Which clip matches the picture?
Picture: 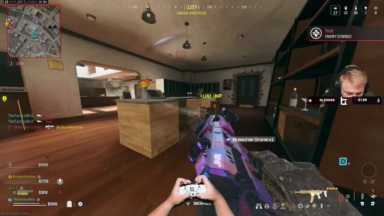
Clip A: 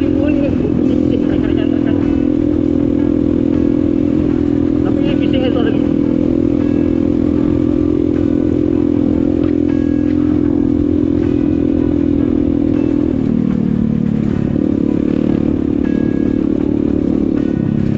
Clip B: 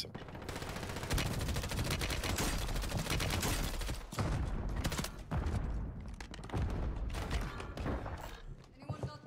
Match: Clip B